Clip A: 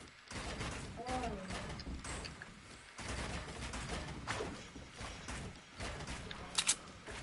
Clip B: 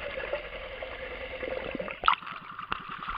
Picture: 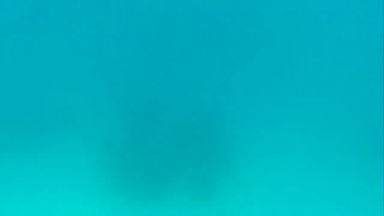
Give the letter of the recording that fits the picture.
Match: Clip B